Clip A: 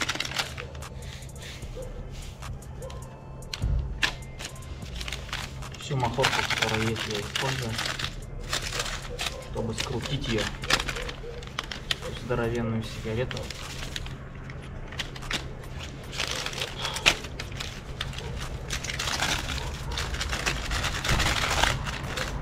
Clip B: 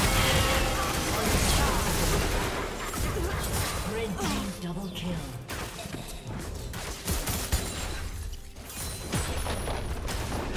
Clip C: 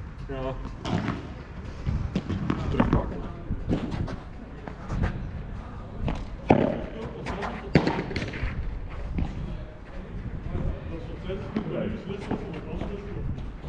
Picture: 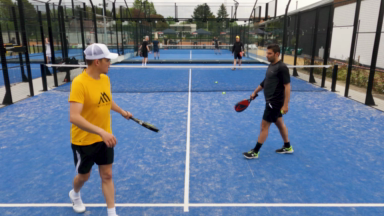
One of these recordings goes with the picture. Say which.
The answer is C